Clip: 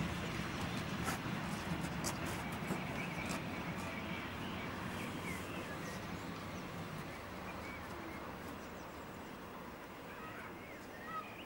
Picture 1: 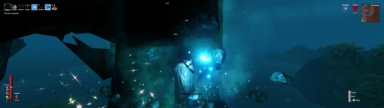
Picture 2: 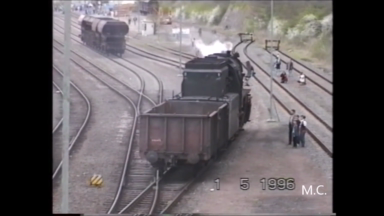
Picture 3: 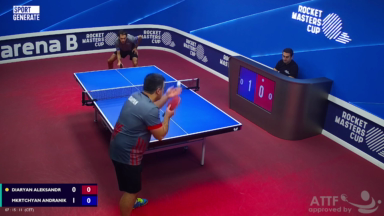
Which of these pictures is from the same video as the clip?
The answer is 2